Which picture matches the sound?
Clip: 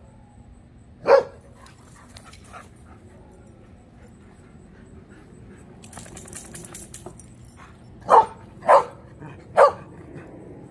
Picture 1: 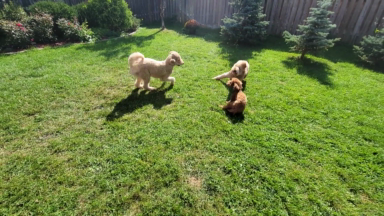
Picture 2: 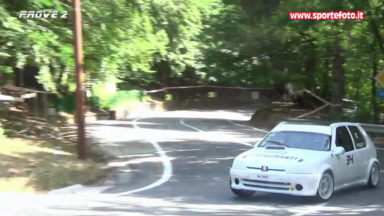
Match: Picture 1